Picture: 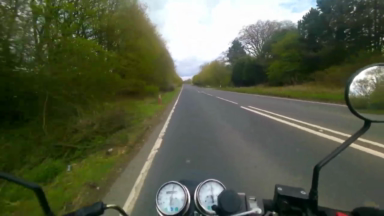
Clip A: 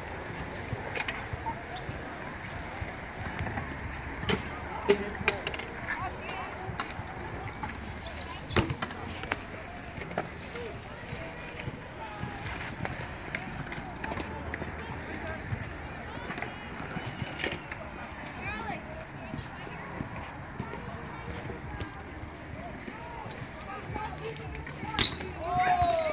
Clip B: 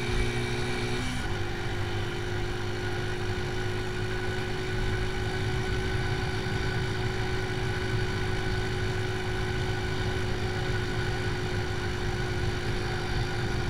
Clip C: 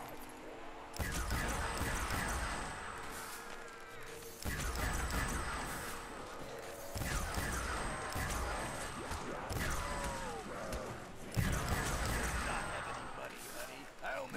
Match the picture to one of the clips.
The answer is B